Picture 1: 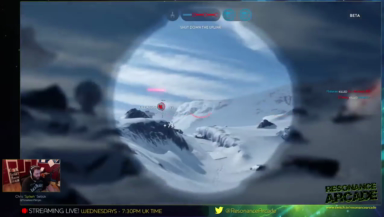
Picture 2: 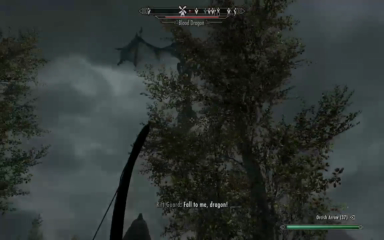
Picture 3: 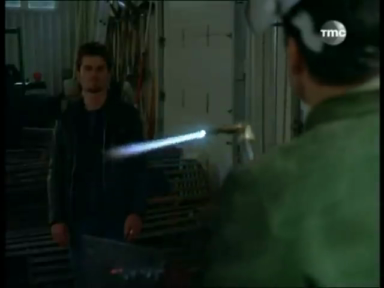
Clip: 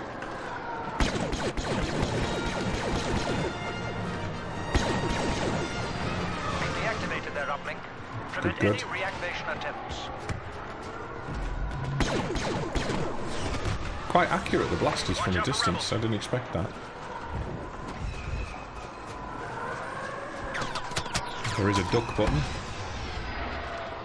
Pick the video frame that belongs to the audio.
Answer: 1